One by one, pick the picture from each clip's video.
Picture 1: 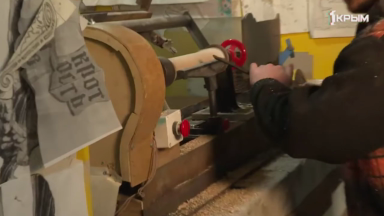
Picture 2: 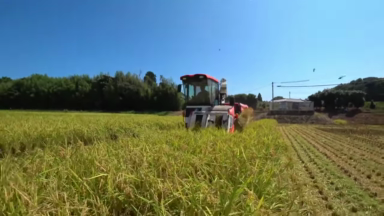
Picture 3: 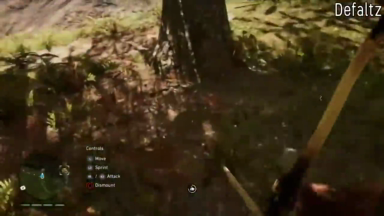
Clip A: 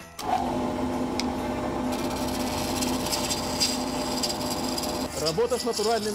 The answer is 1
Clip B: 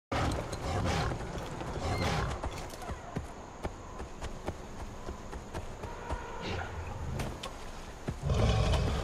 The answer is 3